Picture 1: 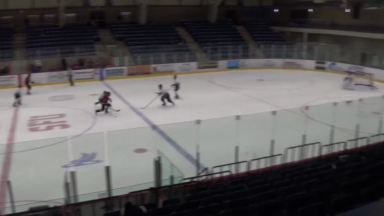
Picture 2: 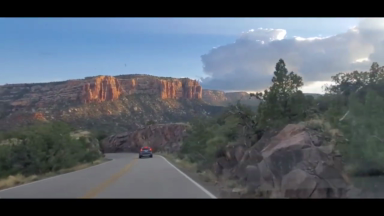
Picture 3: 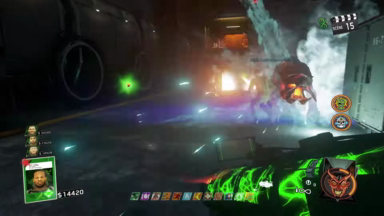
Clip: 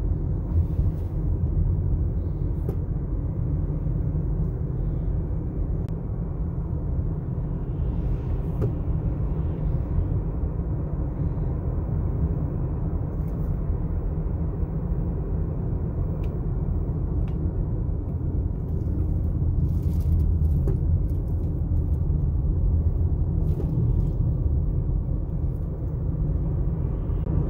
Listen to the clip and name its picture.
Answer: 2